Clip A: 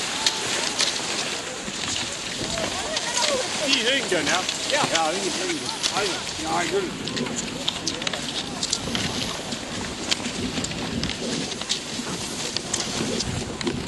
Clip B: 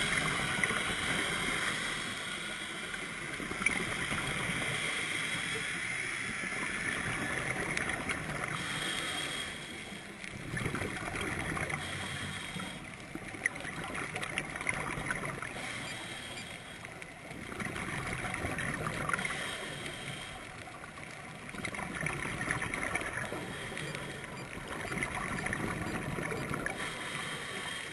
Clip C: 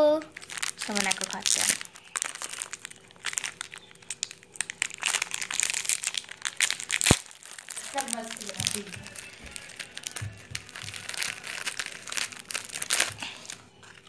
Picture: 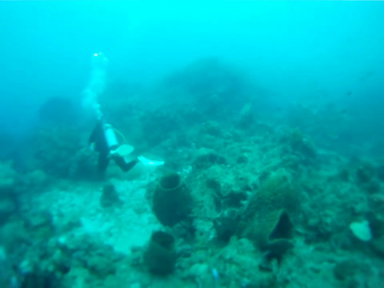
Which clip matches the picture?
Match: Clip B